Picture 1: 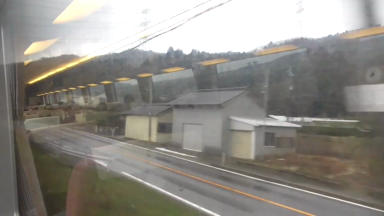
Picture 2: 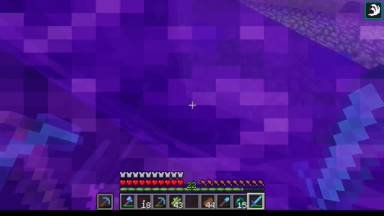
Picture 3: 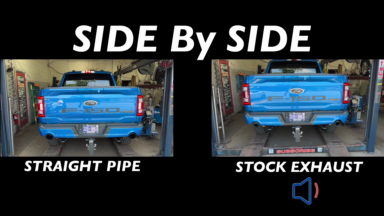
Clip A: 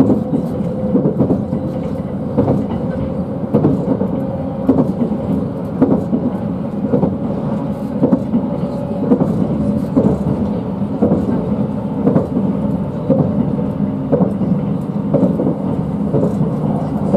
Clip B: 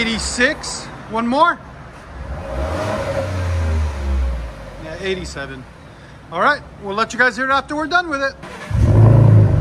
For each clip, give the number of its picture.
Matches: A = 1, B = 3